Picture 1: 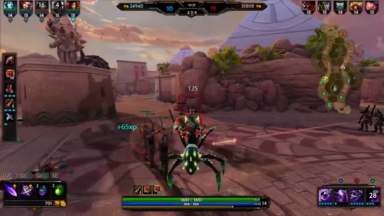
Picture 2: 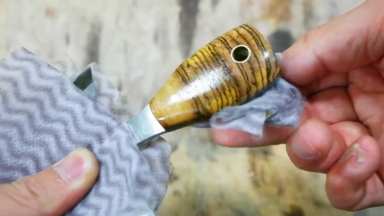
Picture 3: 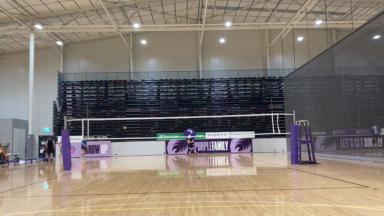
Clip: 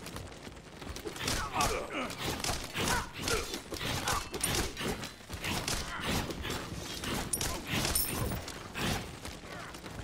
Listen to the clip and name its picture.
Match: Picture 1